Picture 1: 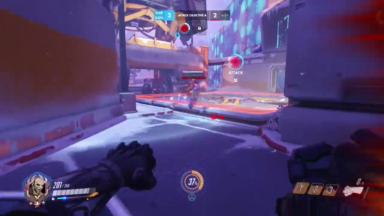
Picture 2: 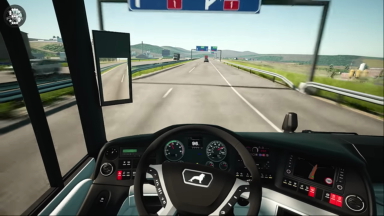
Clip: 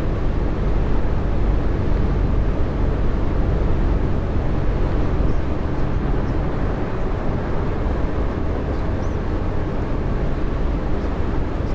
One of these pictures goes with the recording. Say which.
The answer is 2